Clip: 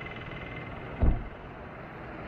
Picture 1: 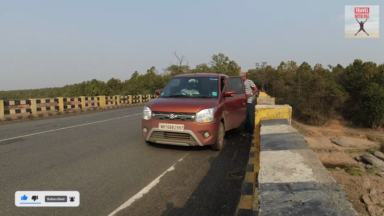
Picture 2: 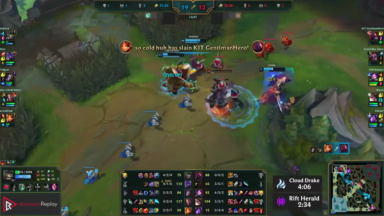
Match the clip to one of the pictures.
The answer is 1